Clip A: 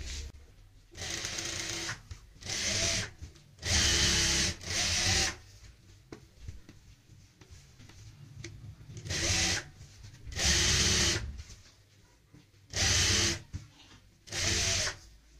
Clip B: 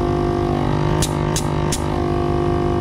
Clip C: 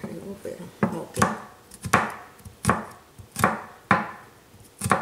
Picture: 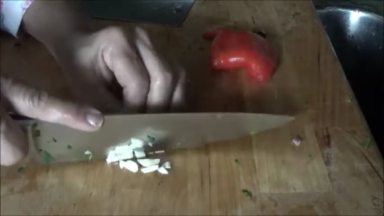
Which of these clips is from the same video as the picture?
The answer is C